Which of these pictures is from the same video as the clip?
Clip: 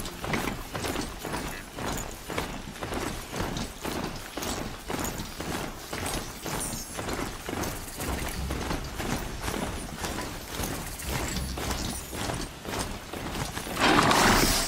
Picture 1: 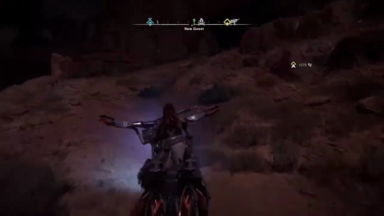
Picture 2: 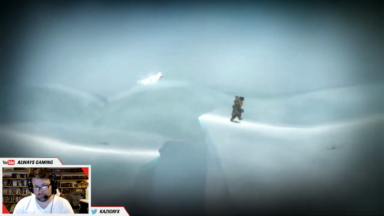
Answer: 1